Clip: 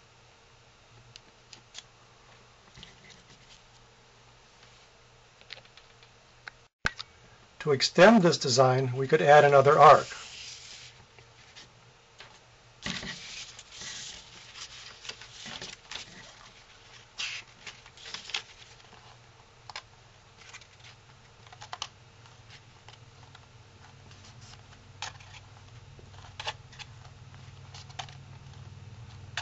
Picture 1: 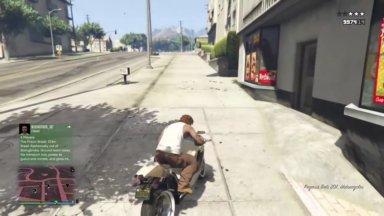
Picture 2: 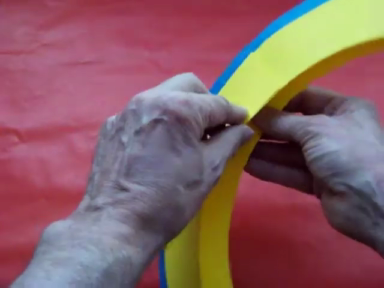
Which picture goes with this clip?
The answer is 2